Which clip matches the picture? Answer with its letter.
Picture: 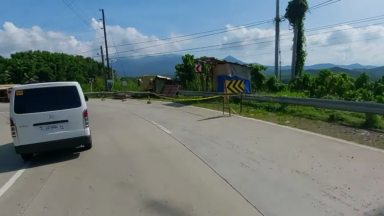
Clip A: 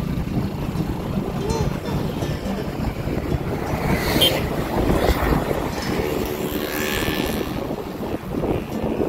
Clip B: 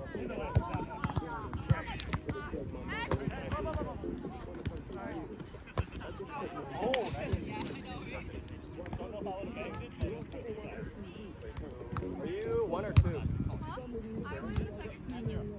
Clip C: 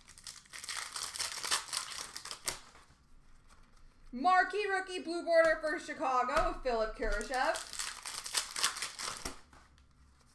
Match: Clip A